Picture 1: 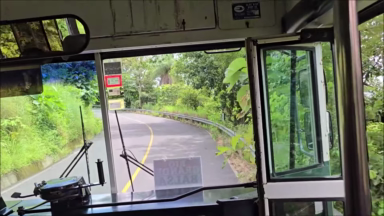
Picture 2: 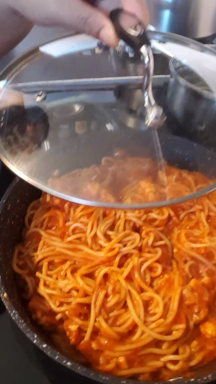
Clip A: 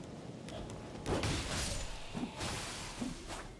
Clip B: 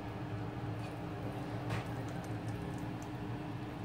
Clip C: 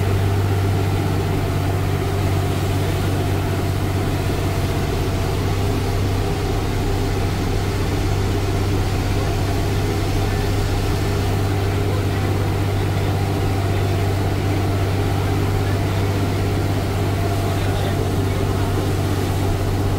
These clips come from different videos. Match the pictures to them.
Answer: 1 C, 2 B